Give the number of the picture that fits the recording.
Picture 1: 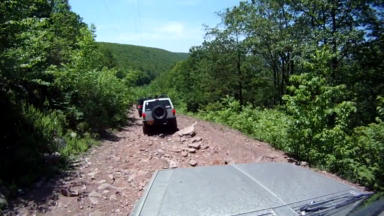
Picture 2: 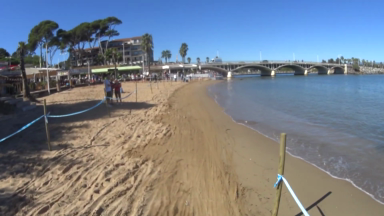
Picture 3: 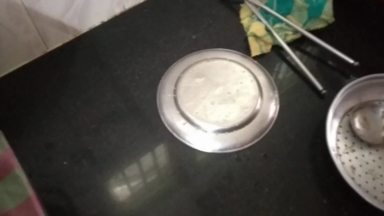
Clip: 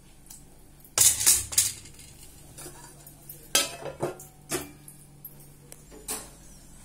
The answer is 3